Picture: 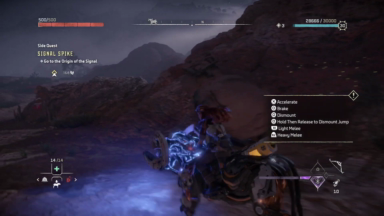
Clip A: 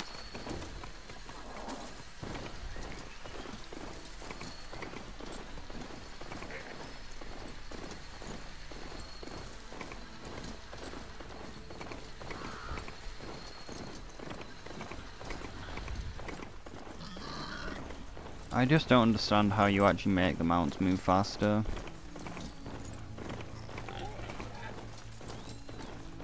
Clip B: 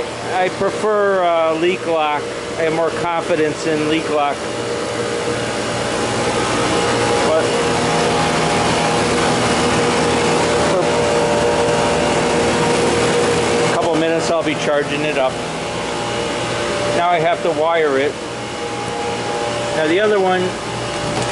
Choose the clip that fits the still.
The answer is A